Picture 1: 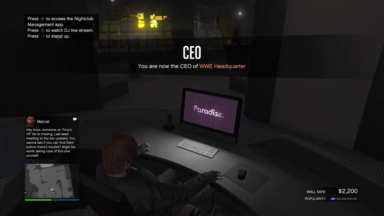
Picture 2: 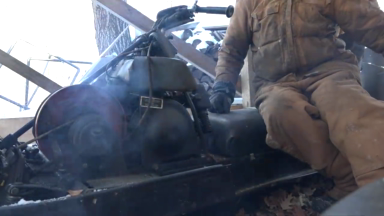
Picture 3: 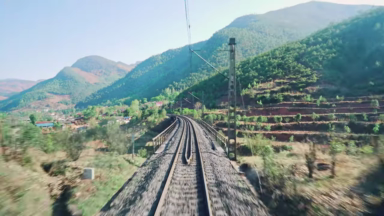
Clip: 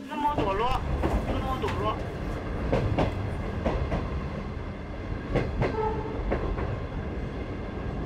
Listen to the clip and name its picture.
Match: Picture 3